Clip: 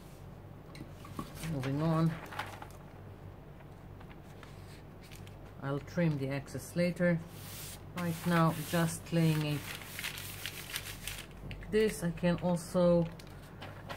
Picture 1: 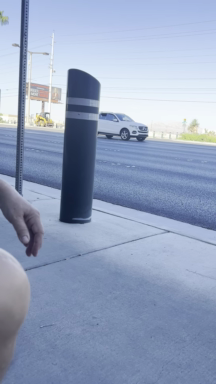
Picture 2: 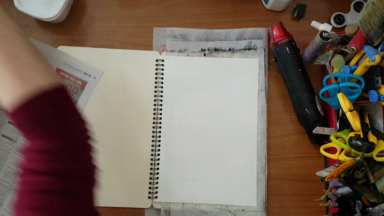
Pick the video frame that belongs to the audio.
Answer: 2